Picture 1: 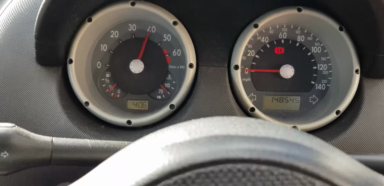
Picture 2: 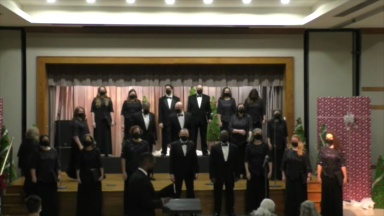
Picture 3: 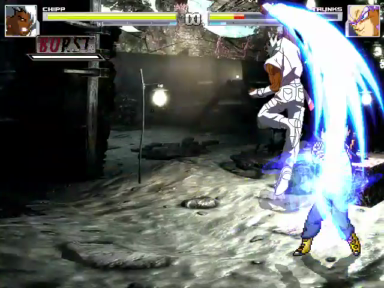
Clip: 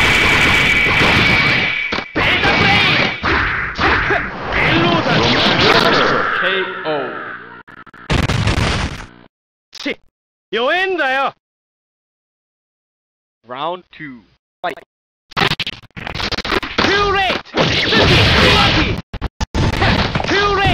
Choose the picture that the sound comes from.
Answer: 3